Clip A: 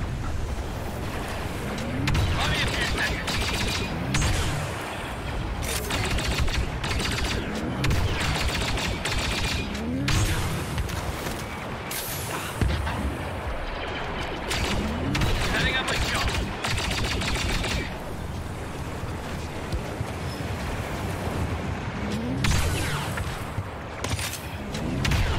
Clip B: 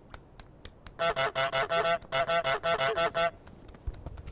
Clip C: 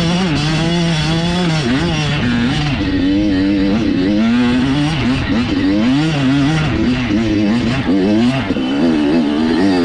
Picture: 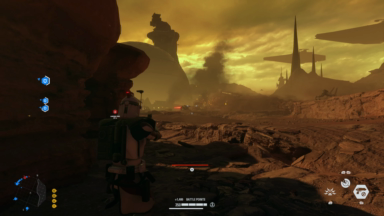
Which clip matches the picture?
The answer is A